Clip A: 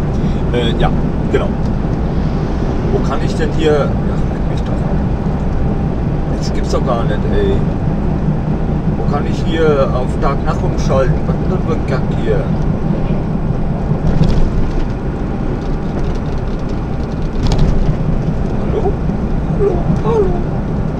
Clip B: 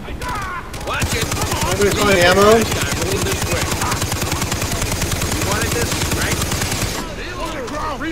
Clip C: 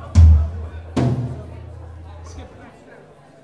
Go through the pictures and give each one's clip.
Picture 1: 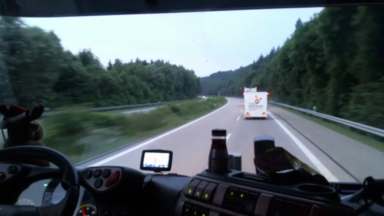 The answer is A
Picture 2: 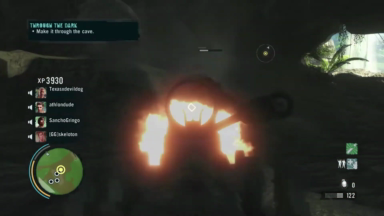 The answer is B